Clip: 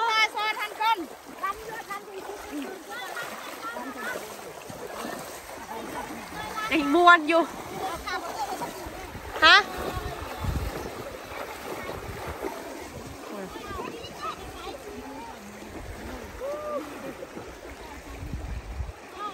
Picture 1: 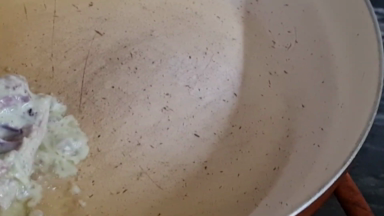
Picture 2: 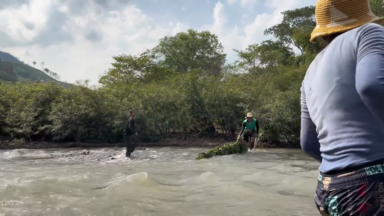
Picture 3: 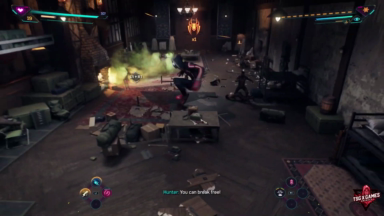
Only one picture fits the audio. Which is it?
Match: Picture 2